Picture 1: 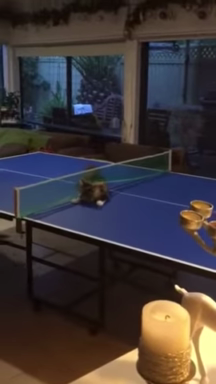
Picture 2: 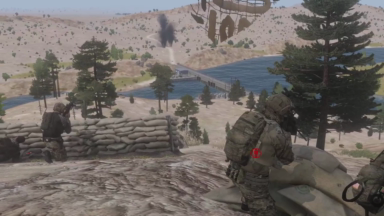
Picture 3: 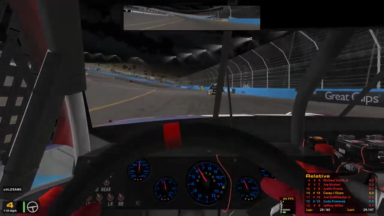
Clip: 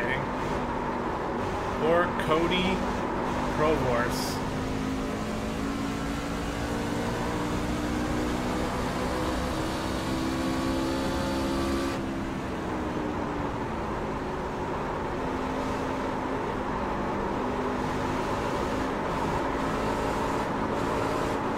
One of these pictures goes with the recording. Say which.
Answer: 3